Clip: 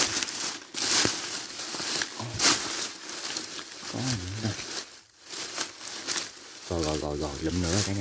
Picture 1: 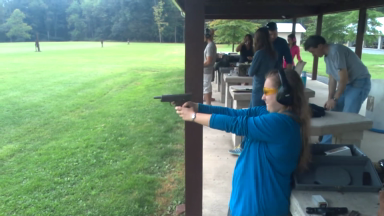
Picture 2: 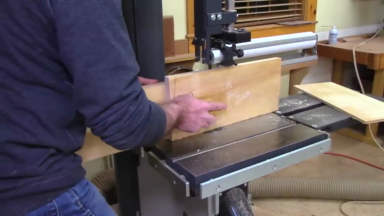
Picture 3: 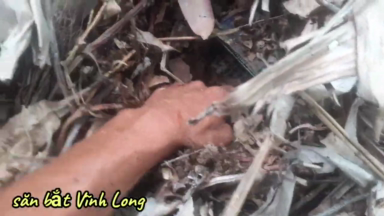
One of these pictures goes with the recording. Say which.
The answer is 3